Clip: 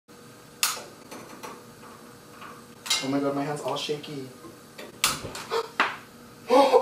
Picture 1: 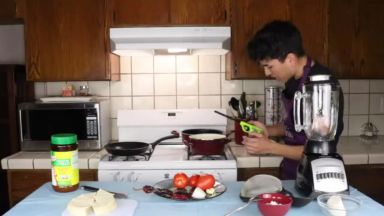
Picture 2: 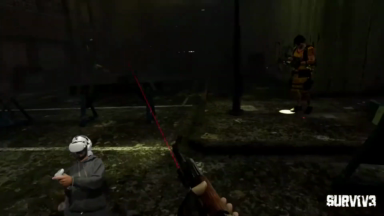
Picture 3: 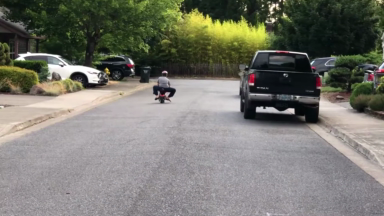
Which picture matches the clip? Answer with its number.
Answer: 1